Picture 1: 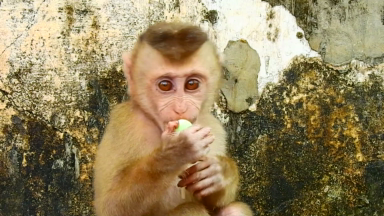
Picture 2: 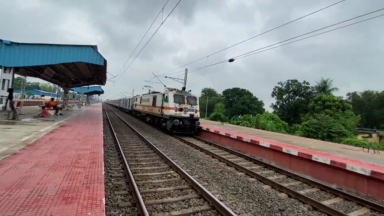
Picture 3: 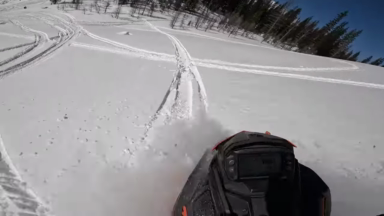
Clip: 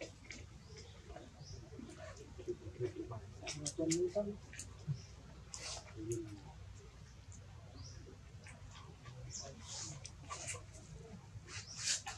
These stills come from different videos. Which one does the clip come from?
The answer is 1